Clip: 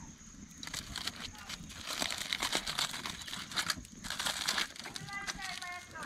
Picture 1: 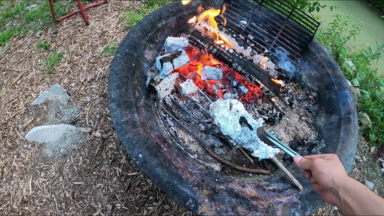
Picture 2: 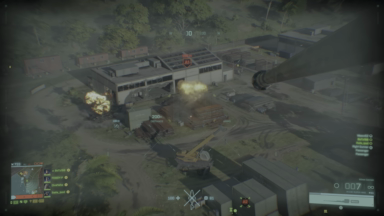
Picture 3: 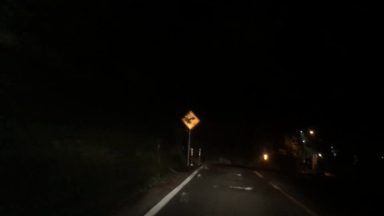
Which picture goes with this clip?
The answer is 1